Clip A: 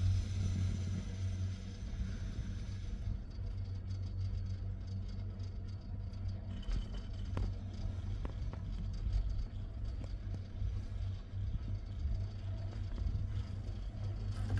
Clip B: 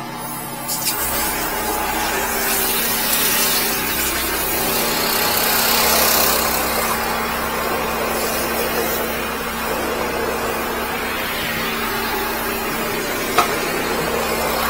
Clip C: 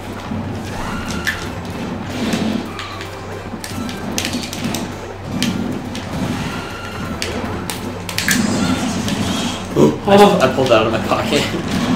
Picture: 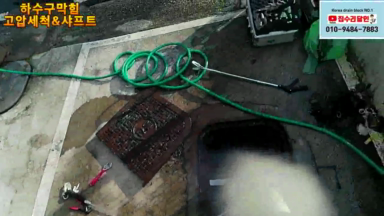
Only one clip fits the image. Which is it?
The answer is B